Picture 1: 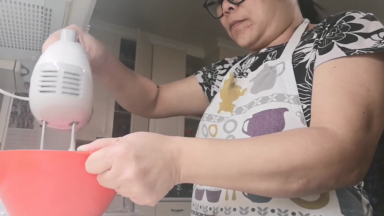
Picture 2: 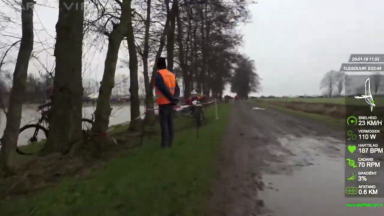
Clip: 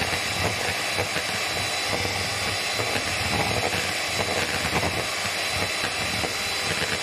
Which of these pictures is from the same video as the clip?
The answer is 1